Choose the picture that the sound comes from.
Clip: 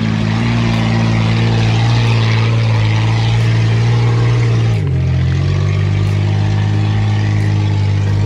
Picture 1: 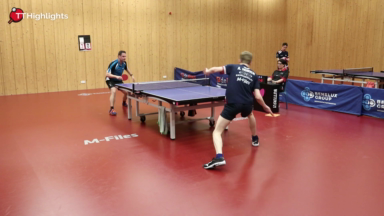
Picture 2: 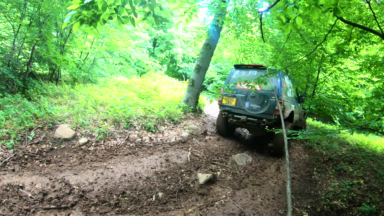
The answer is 2